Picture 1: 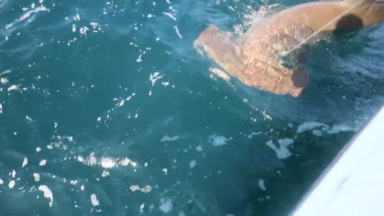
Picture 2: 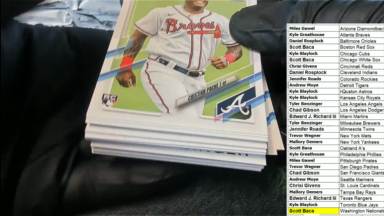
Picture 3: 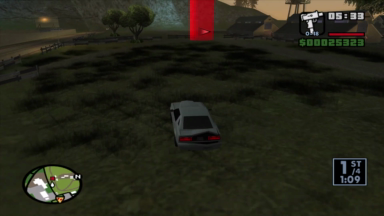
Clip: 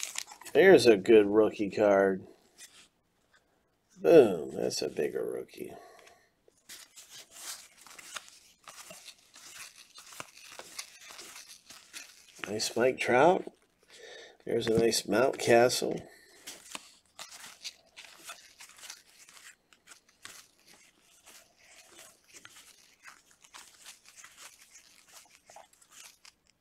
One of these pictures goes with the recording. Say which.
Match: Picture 2